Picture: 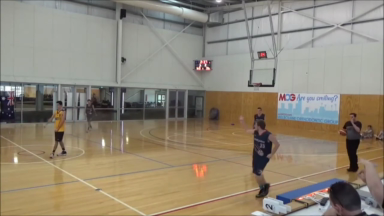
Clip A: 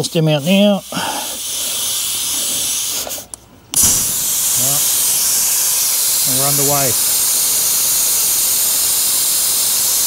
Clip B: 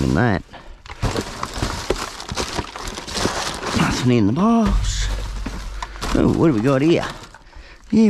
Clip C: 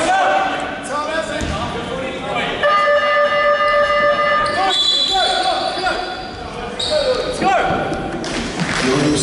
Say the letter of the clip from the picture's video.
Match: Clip C